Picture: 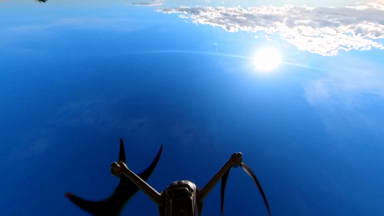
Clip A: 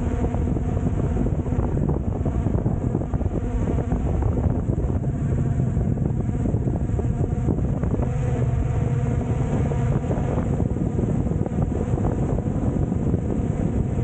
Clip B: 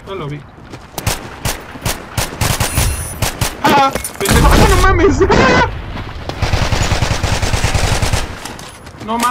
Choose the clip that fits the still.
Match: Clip A